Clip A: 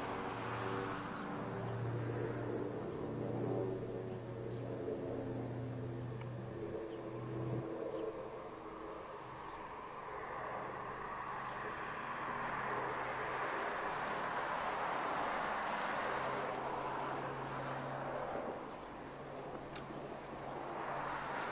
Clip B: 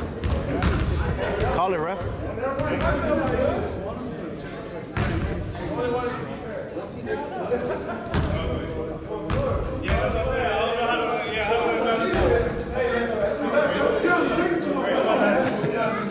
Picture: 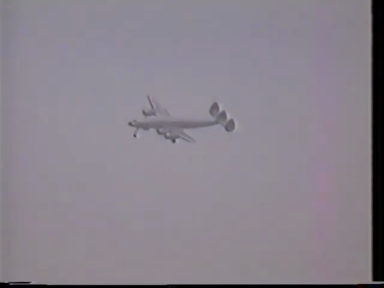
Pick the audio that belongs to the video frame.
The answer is A